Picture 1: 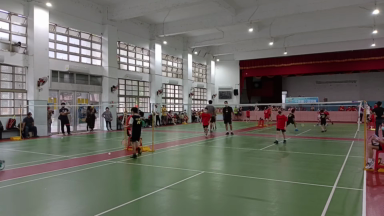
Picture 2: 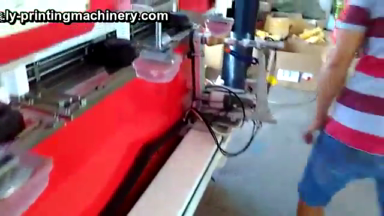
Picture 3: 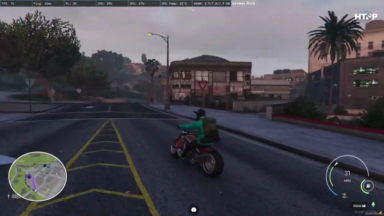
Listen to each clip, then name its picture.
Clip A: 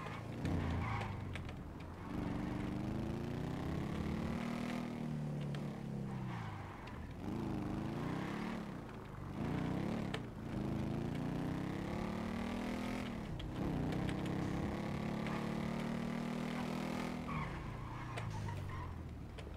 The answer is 3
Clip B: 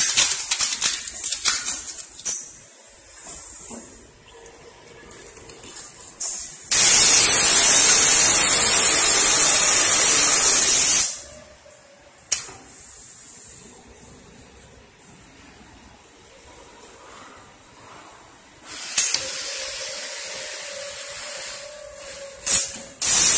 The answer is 2